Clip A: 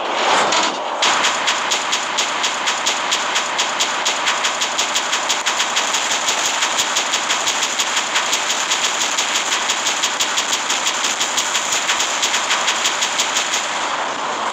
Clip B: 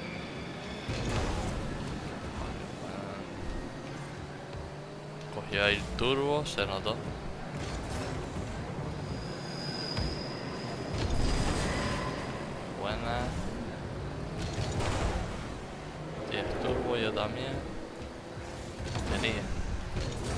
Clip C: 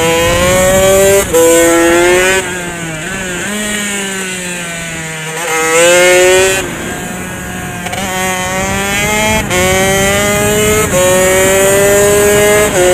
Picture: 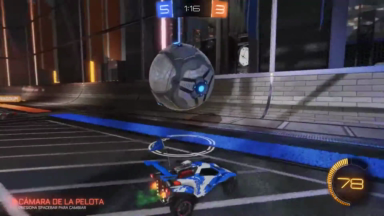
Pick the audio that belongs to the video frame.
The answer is B